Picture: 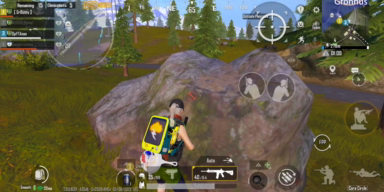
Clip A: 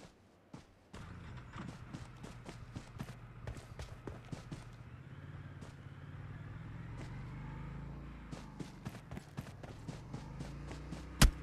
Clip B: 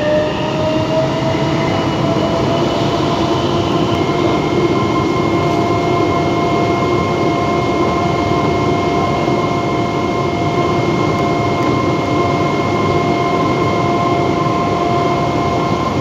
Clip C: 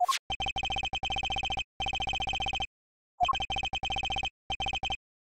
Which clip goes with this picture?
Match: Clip A